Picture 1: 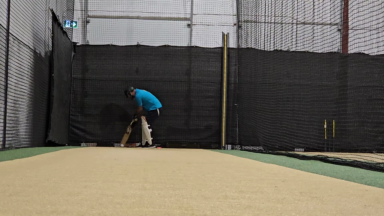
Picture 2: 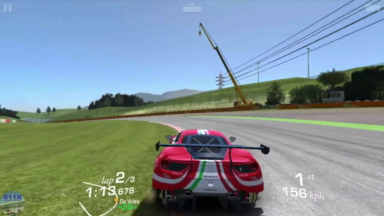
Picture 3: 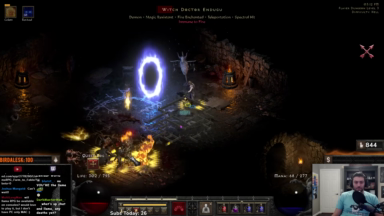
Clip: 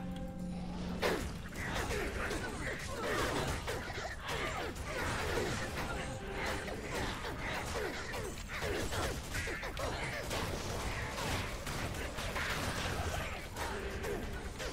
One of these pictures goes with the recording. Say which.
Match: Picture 3